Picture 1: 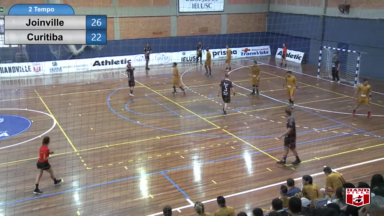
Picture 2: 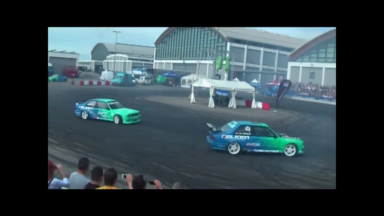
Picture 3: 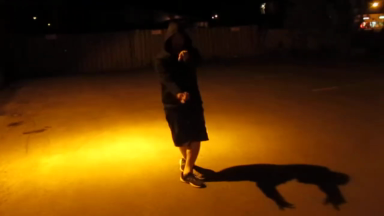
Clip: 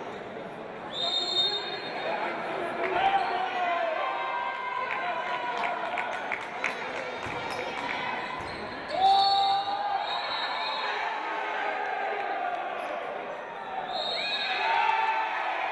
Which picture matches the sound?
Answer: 1